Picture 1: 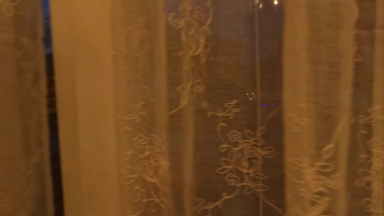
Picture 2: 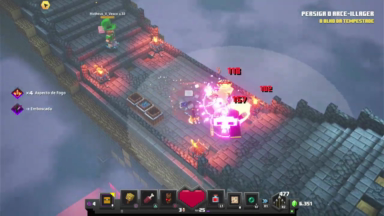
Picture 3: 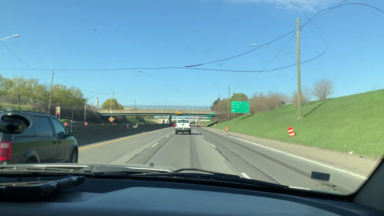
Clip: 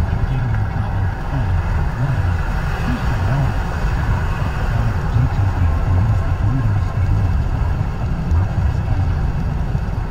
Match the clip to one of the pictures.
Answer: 3